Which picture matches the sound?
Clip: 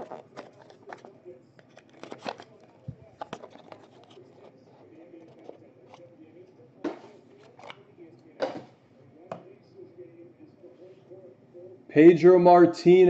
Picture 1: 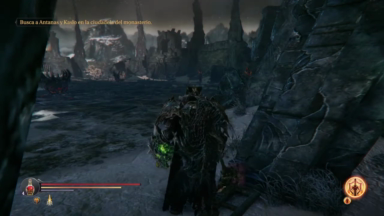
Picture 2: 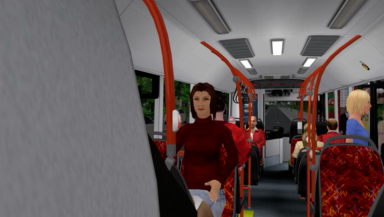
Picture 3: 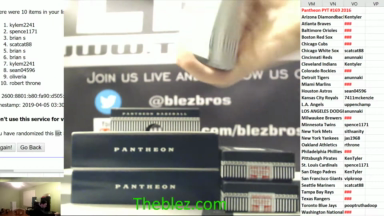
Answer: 3